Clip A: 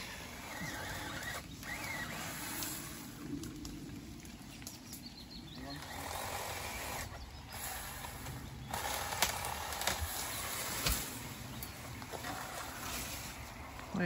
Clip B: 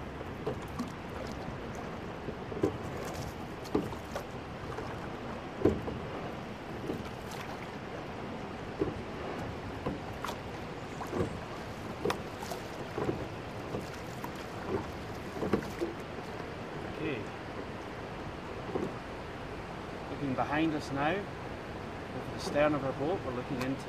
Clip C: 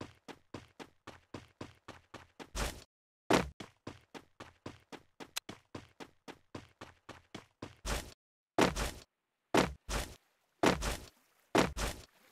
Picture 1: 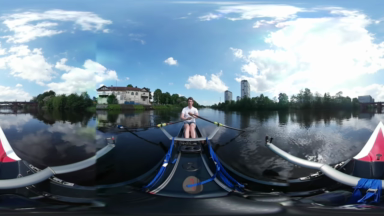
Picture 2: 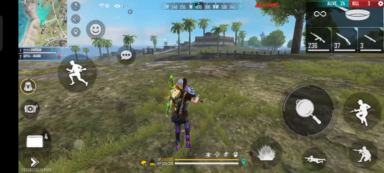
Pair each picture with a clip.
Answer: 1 B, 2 C